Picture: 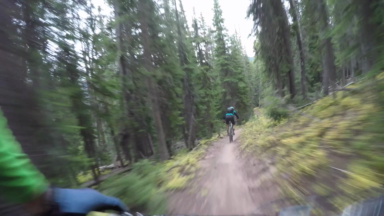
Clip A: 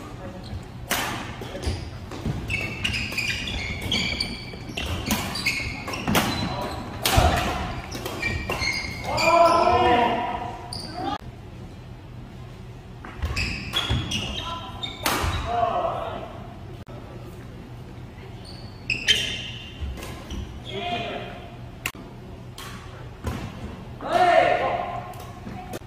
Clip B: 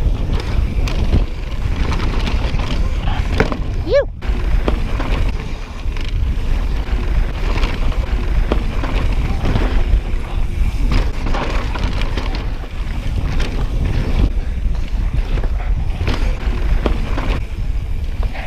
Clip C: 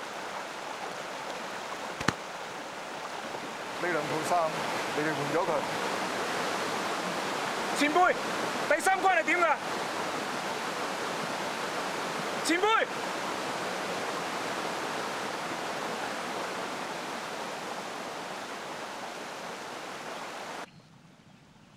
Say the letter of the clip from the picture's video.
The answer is B